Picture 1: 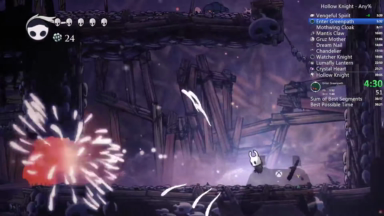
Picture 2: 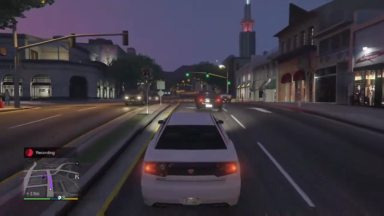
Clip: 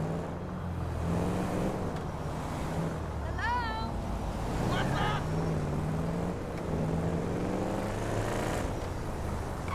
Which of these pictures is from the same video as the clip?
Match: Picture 2